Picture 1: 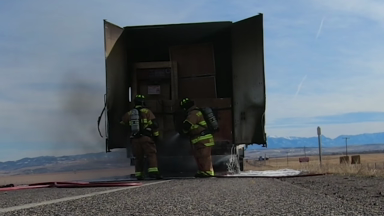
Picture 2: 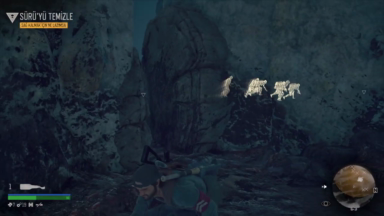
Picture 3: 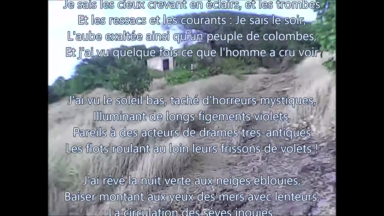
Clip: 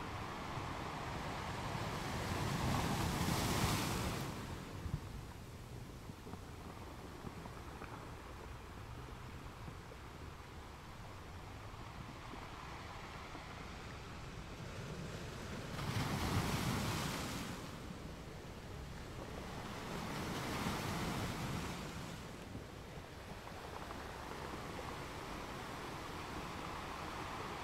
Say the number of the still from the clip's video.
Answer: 3